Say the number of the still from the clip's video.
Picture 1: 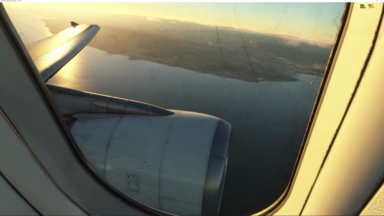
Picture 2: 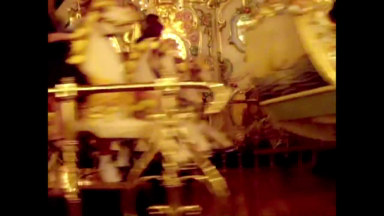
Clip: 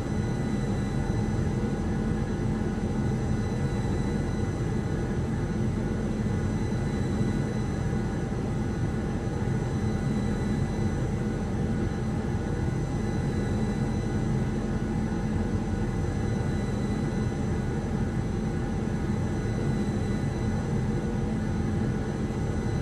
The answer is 1